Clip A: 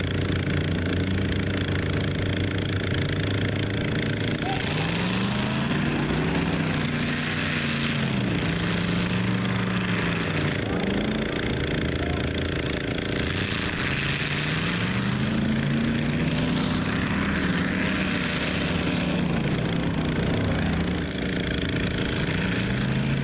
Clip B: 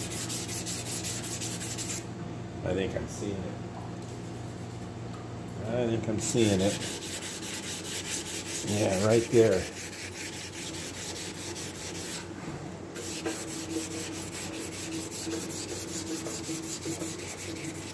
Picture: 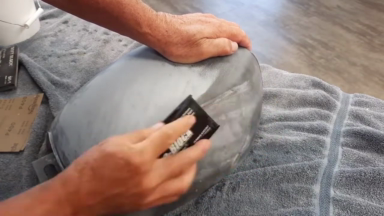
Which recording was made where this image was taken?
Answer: B